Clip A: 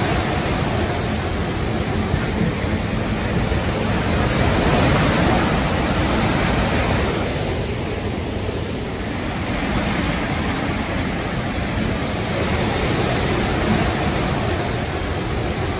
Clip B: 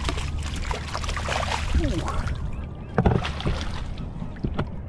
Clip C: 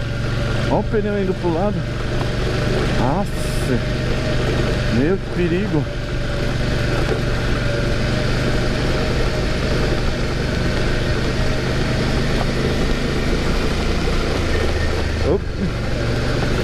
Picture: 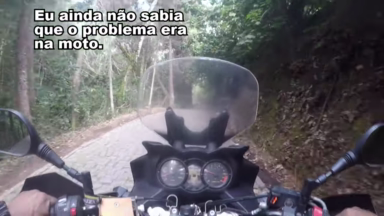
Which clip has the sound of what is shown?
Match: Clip C